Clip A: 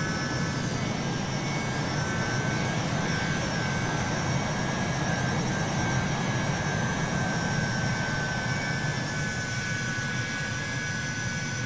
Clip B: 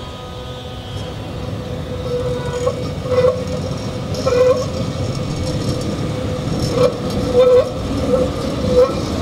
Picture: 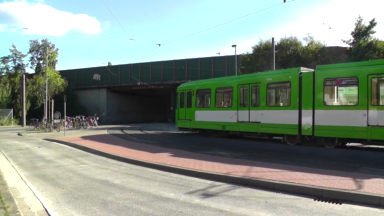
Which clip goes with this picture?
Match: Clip B